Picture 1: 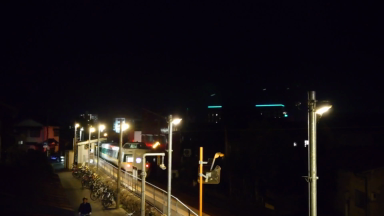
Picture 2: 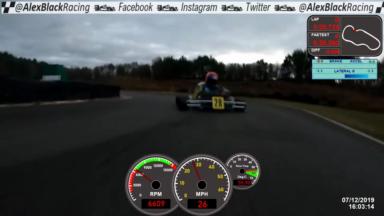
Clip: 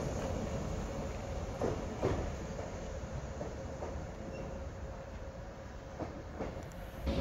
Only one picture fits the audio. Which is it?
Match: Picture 1